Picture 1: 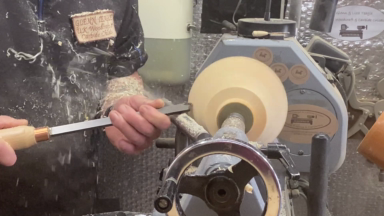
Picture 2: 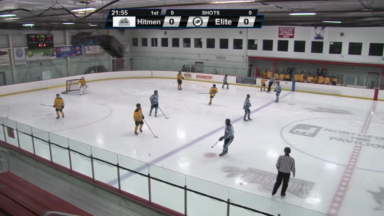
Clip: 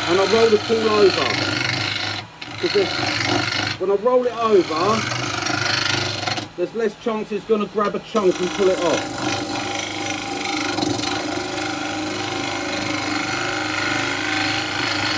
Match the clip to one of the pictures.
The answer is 1